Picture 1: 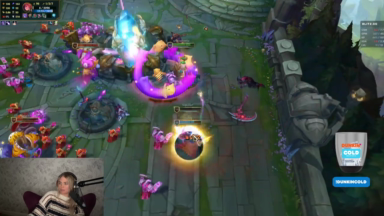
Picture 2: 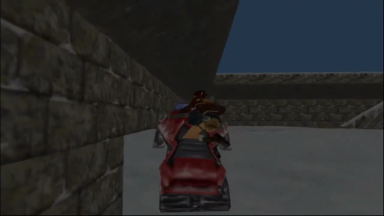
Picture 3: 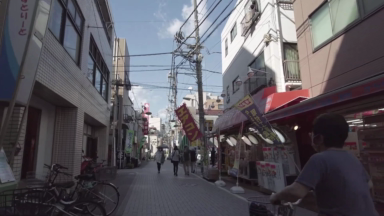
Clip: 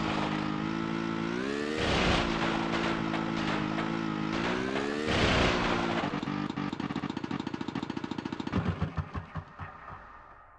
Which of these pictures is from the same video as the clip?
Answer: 2